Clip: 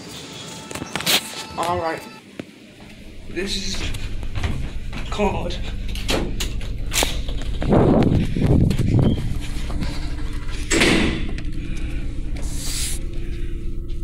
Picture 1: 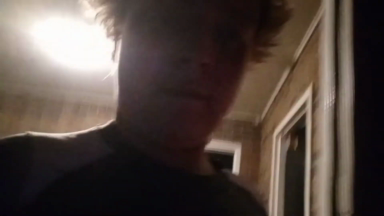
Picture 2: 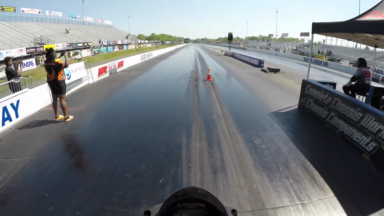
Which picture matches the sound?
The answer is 1